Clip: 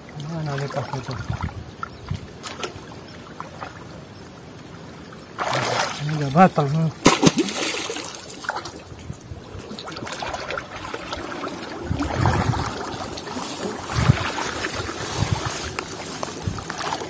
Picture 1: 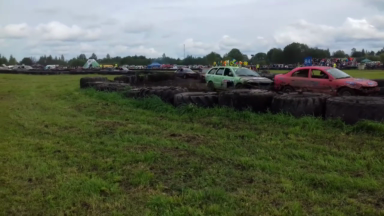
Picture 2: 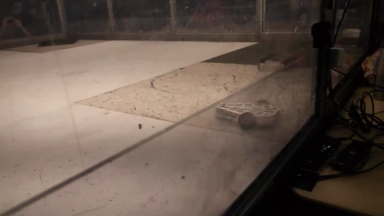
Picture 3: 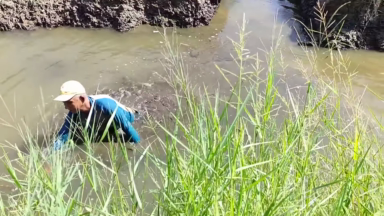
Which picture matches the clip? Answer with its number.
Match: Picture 3